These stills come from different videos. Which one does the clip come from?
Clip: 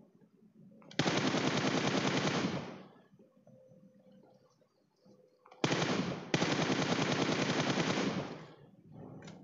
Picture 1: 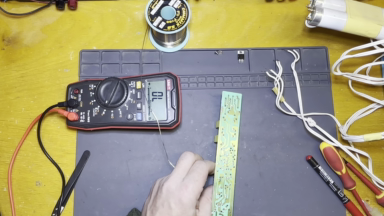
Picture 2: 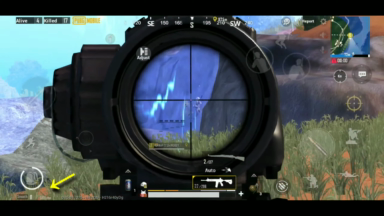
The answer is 2